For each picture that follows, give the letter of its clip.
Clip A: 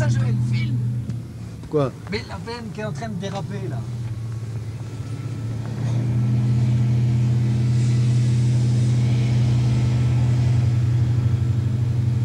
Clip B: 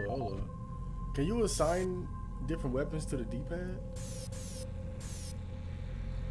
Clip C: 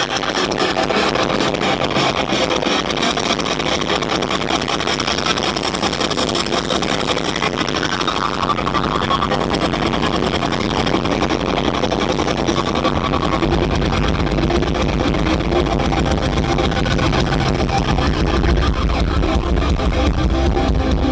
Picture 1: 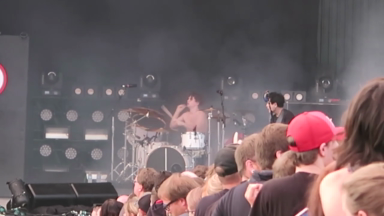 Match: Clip C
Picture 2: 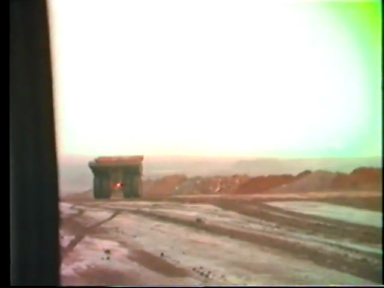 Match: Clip A